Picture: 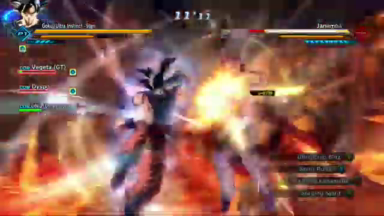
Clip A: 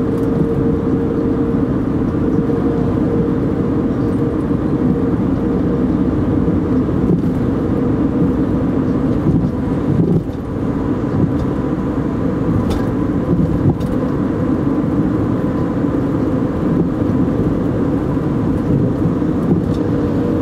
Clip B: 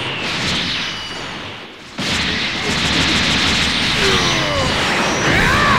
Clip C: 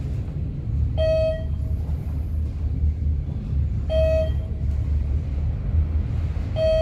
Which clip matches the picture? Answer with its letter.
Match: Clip B